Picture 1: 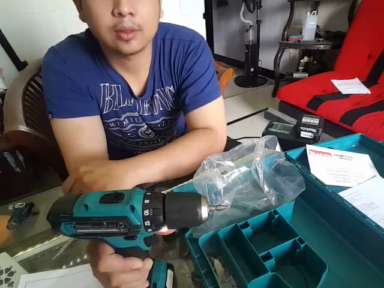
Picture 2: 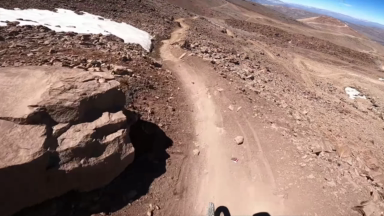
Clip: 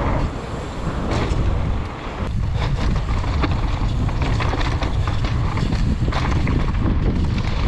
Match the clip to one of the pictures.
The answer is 2